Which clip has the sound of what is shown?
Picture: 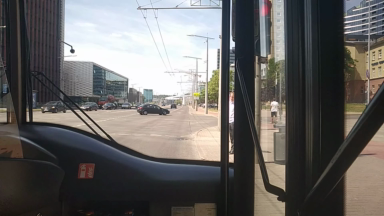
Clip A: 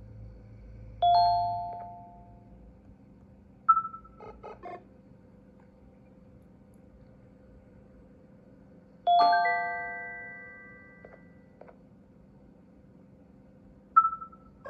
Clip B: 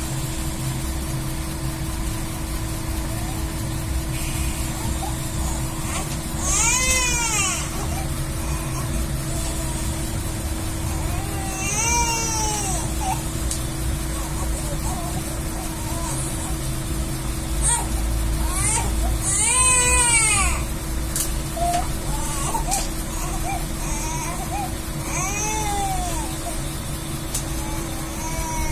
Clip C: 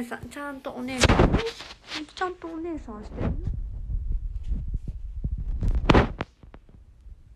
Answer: B